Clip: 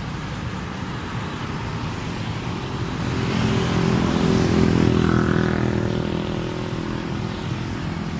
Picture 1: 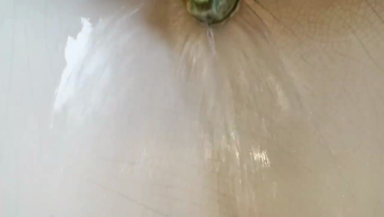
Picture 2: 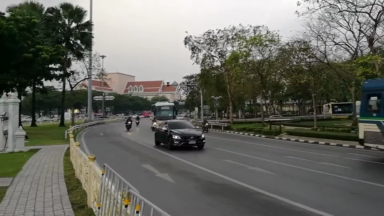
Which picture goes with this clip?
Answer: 2